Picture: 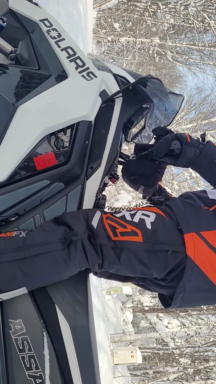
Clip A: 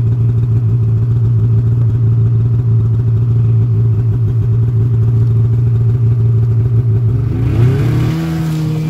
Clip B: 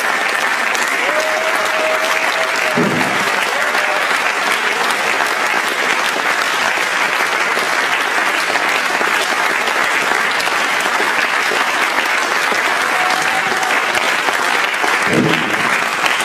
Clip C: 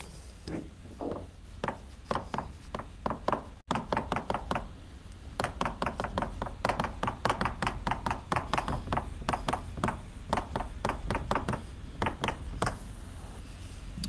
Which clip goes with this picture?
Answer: A